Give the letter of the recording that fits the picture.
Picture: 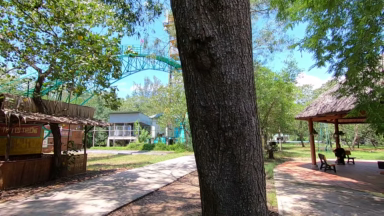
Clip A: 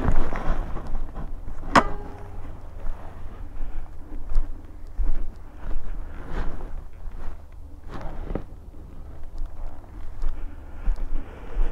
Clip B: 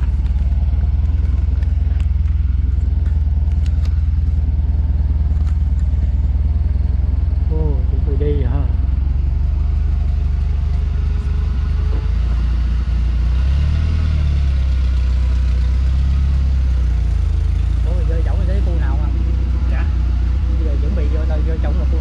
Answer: B